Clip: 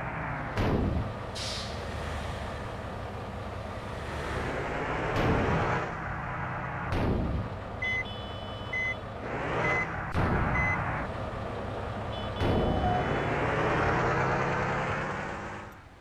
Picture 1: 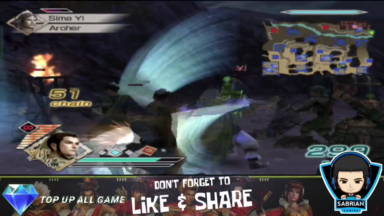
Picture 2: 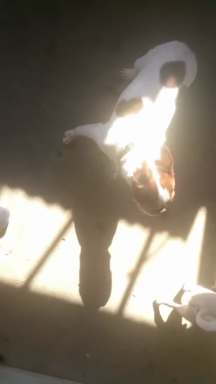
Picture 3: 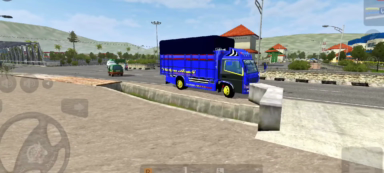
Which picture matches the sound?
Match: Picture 3